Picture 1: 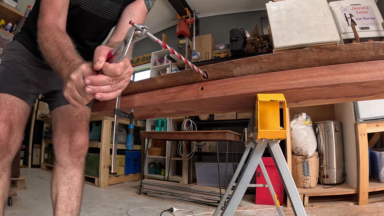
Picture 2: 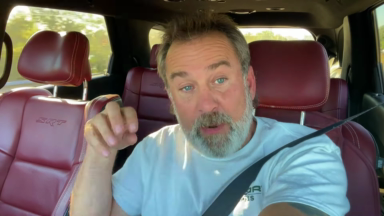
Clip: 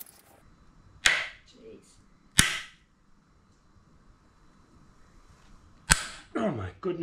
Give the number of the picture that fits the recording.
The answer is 1